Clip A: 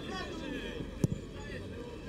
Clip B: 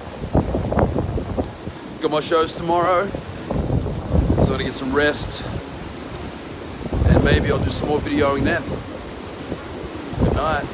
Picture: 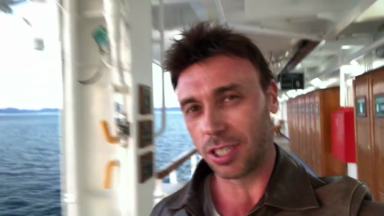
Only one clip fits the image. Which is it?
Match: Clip B